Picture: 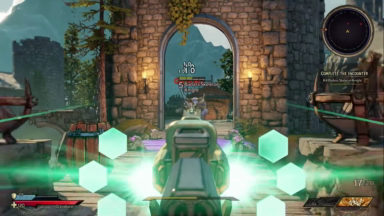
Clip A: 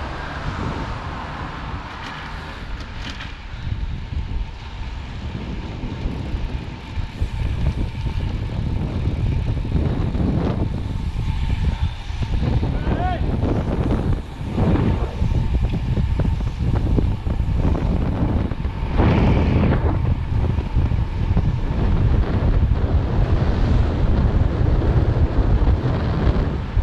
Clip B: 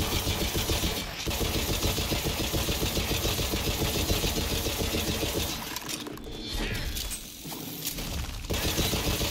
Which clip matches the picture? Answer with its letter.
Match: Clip B